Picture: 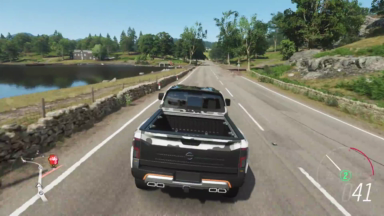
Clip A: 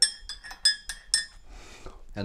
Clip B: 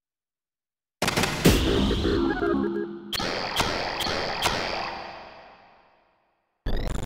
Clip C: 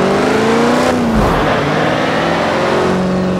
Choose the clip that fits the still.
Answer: C